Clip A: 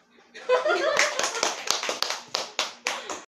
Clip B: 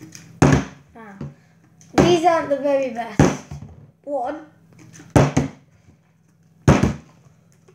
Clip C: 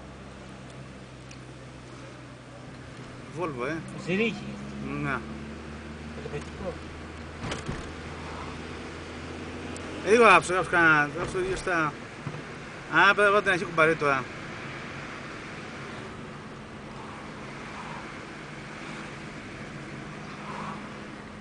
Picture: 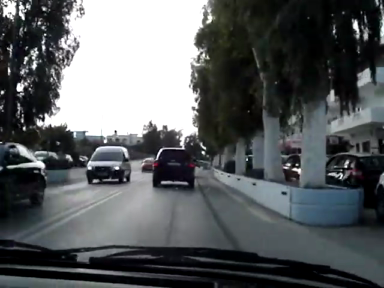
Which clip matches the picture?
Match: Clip C